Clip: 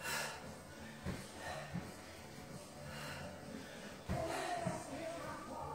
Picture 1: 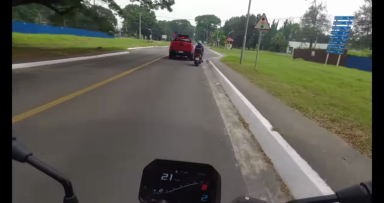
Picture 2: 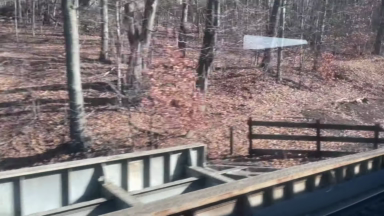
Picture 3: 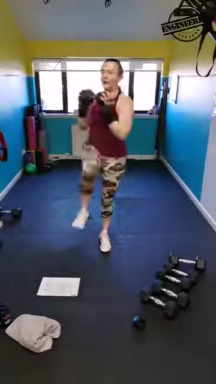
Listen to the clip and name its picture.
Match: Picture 3